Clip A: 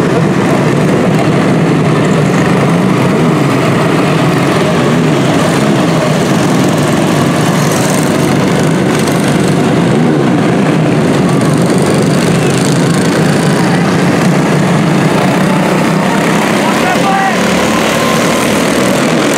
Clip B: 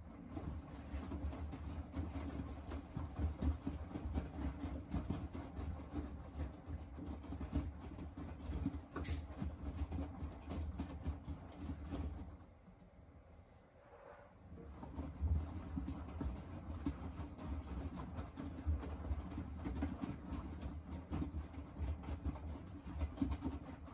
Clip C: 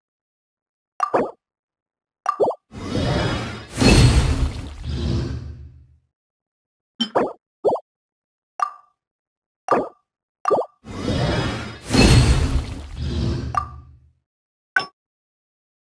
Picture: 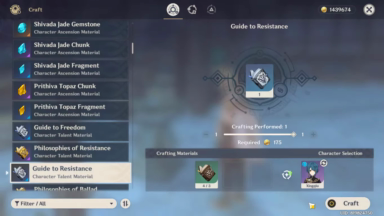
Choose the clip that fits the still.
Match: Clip C